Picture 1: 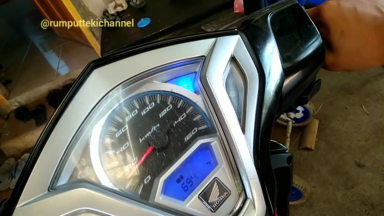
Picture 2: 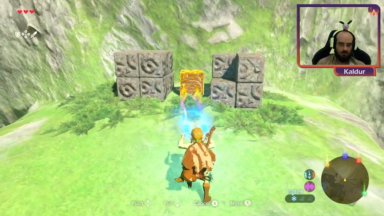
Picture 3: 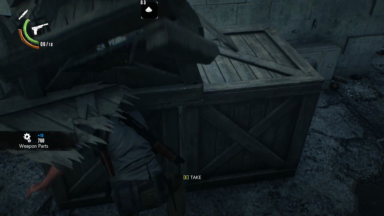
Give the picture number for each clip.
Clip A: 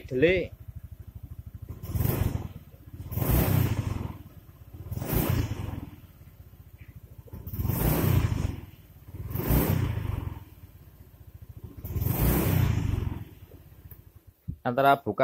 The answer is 1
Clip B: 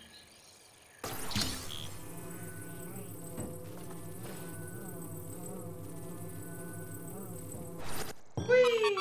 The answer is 2